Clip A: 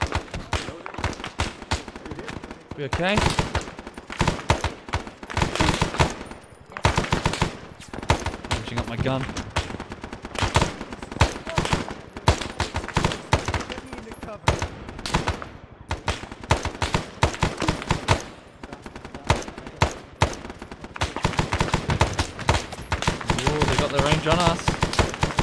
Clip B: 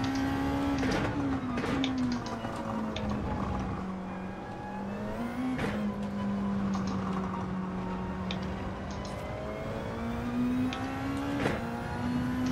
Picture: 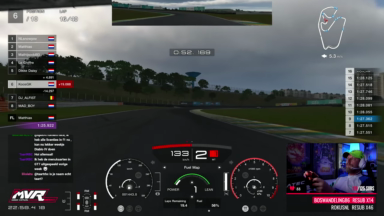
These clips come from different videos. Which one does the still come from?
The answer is B